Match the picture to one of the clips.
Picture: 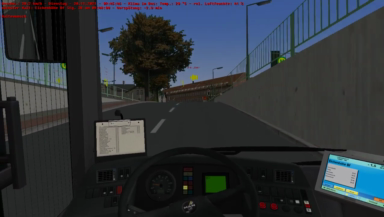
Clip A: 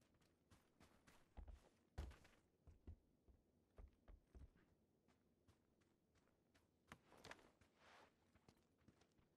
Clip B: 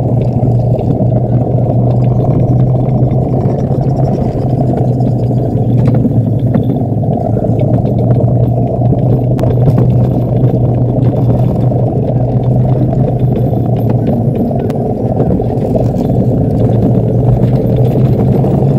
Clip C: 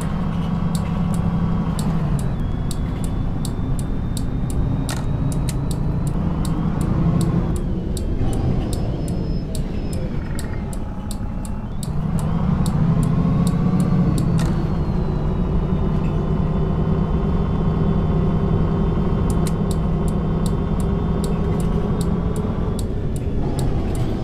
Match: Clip C